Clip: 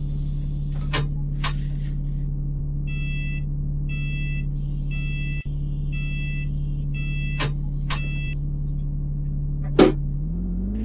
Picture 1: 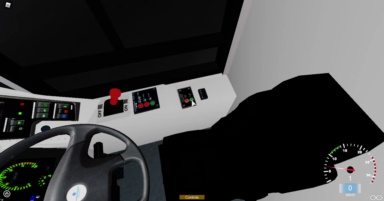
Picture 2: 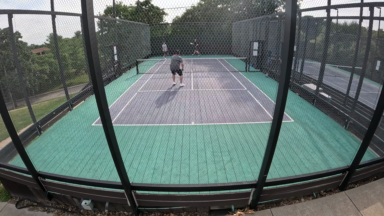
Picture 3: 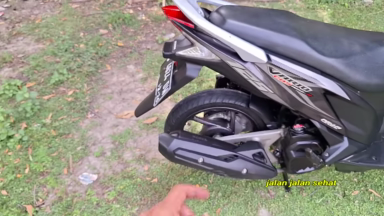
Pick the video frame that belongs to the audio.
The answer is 1